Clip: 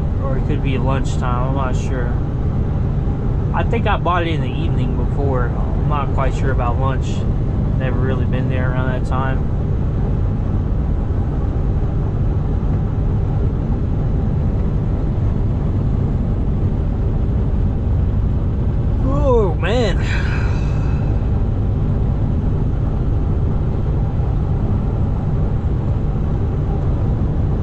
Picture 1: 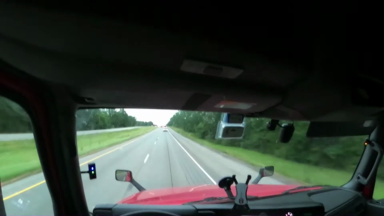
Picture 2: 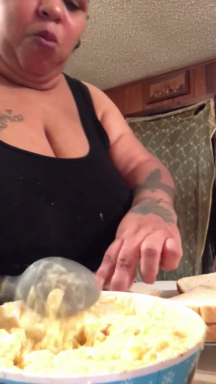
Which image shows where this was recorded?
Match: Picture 1